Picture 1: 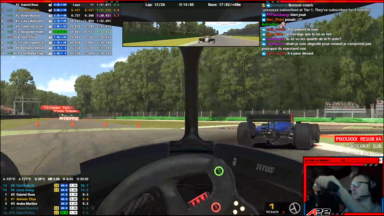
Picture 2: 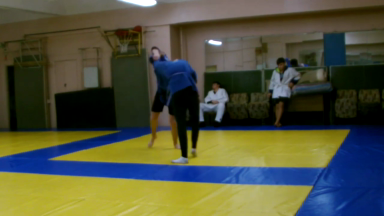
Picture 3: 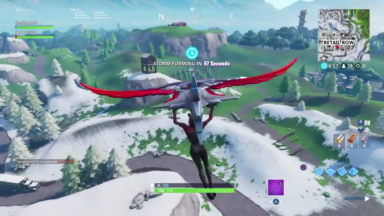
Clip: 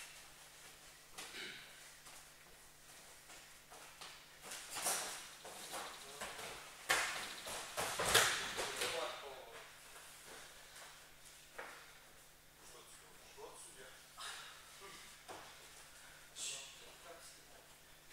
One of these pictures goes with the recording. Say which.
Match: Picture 2